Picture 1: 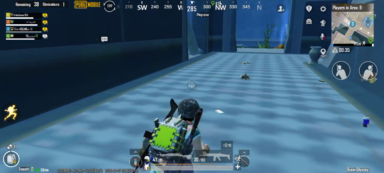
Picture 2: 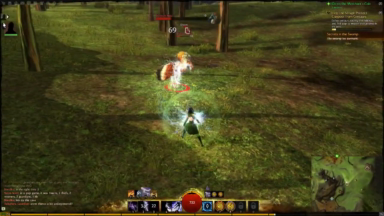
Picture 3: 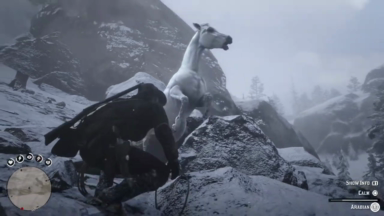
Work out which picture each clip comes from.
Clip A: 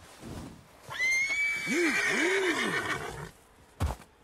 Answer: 3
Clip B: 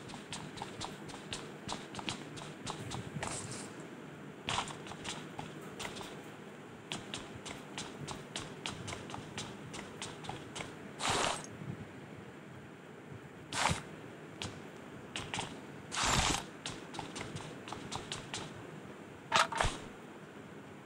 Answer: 1